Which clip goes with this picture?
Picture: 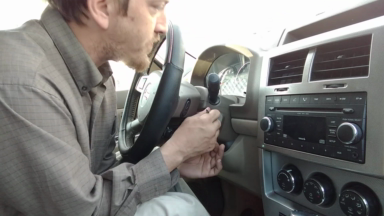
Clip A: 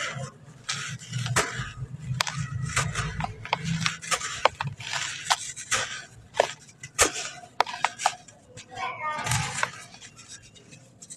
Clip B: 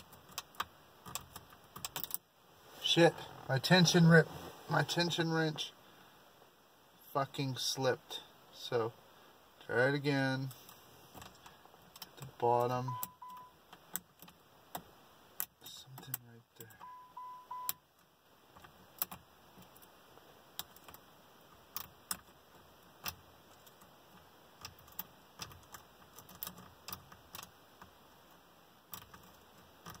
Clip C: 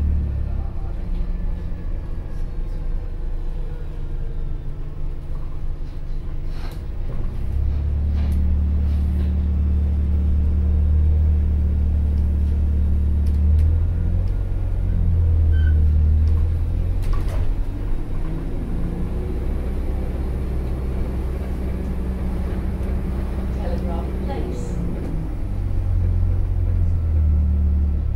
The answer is B